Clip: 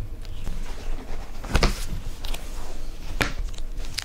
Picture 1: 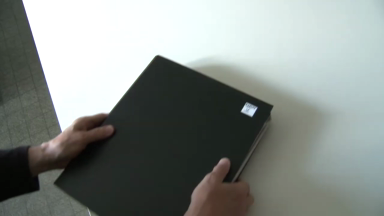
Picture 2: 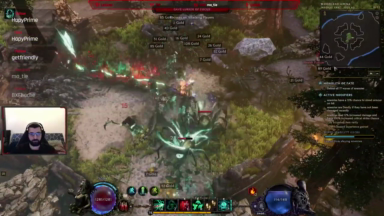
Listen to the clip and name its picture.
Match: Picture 1